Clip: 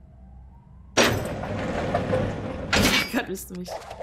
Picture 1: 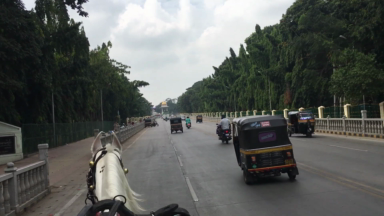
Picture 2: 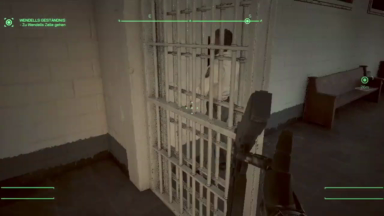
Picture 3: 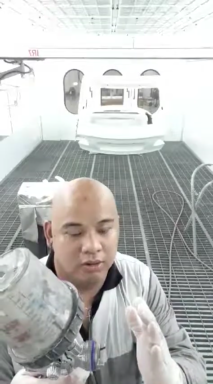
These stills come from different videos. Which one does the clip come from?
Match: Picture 2